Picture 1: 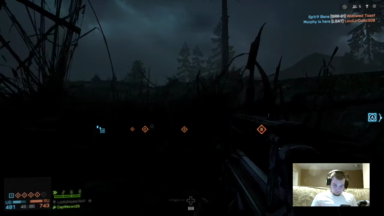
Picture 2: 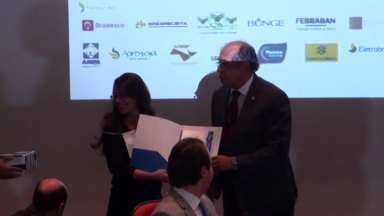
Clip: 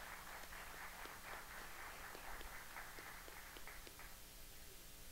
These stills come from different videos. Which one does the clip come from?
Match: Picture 2